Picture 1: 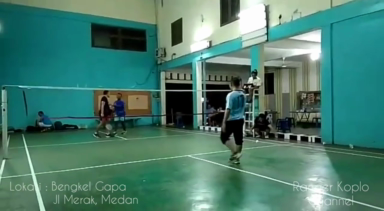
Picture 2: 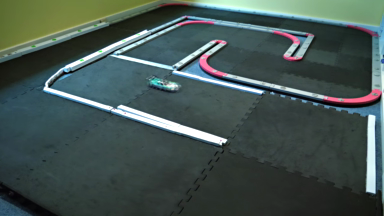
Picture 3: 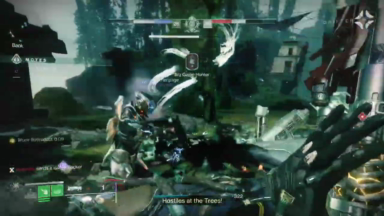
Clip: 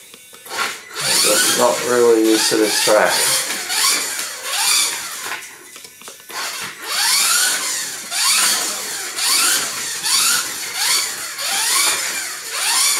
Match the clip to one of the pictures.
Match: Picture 2